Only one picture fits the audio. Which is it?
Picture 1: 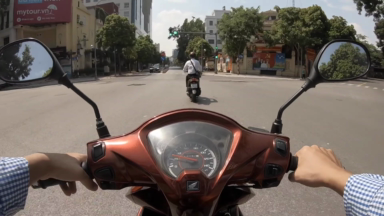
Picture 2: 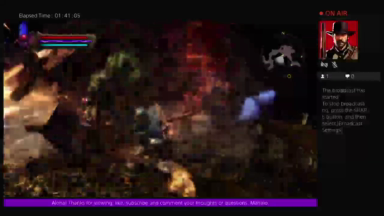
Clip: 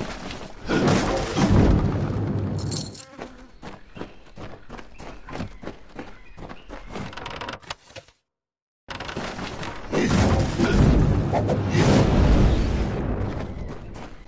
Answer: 2